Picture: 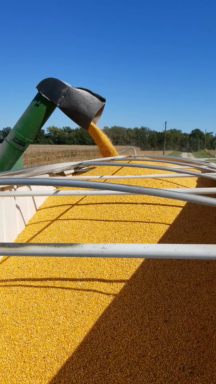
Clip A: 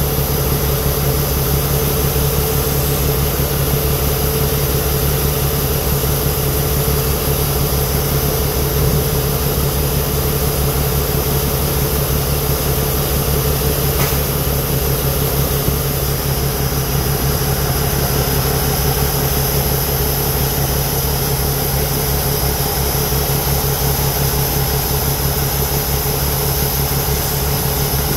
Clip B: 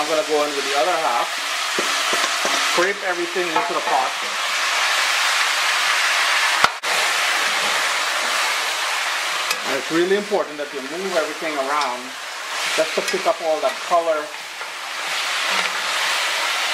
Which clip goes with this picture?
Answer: A